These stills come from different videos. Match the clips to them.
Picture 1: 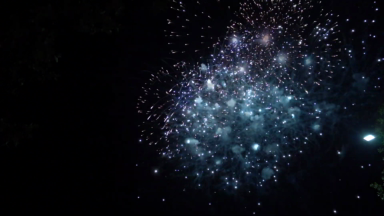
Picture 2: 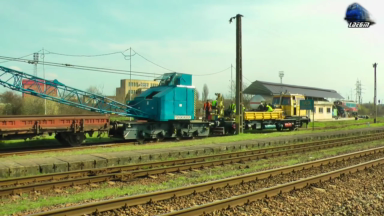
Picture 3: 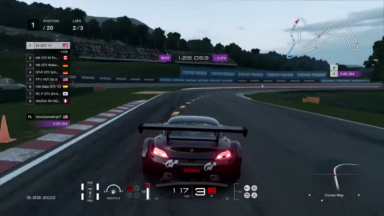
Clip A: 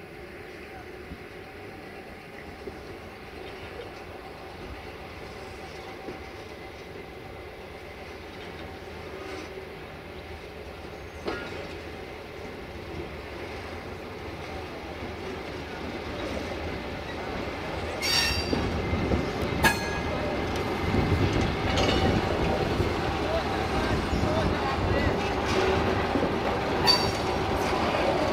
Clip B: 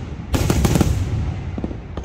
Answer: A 2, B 1